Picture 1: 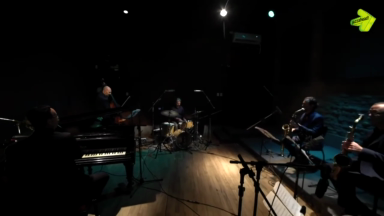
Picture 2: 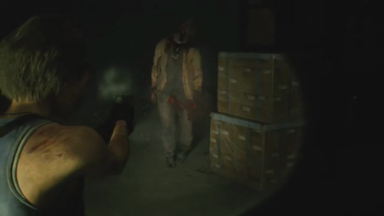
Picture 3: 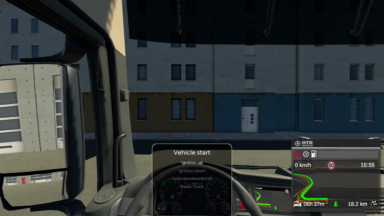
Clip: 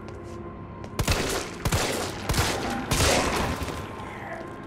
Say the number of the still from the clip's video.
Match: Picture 2